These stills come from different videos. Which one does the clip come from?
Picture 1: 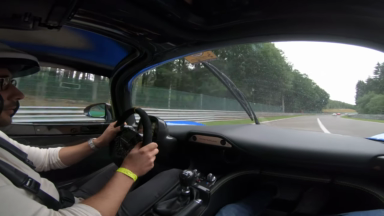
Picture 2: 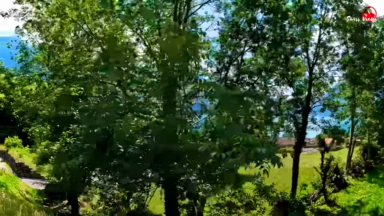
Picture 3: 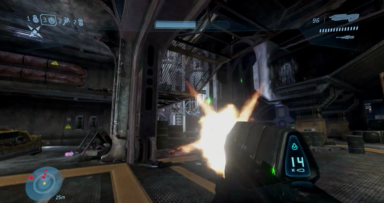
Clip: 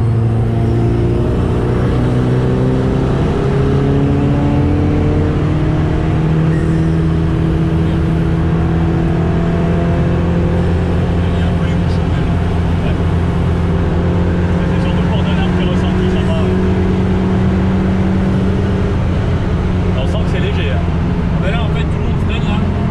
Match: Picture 1